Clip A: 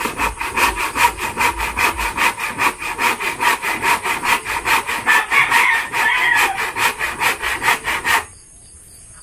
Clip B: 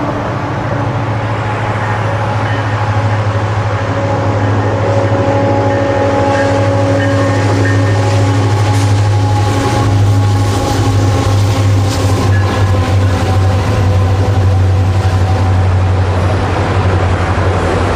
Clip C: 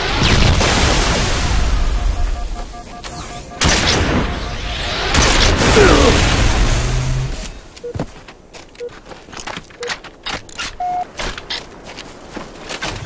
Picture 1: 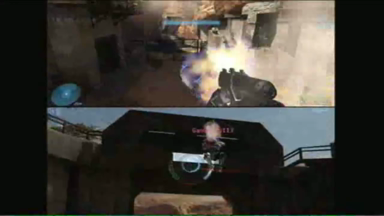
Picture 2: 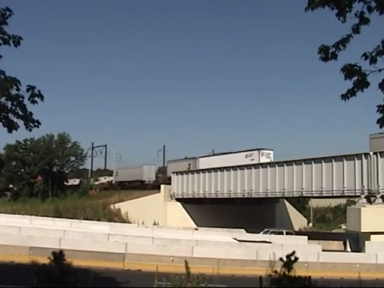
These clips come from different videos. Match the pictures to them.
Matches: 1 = C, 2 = B